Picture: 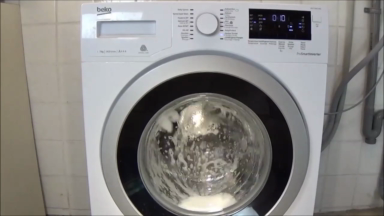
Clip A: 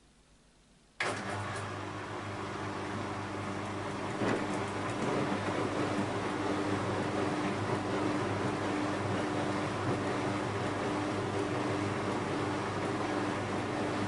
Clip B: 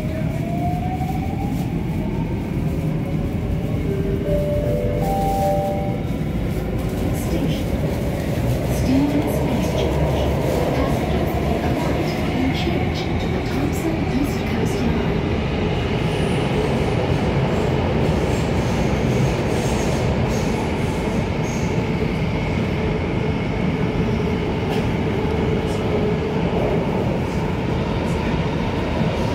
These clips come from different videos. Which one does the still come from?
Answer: A